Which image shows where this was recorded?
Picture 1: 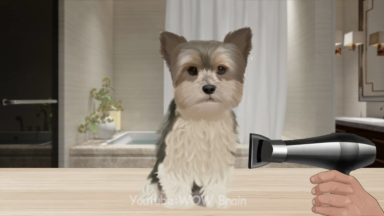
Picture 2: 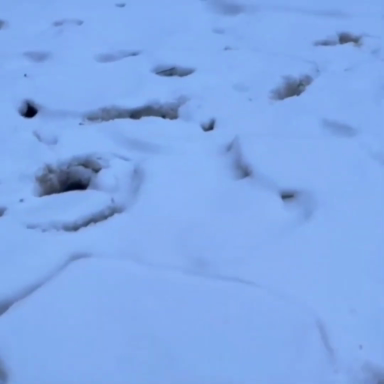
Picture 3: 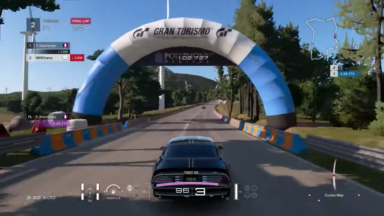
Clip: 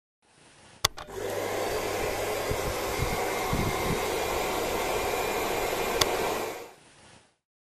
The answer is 1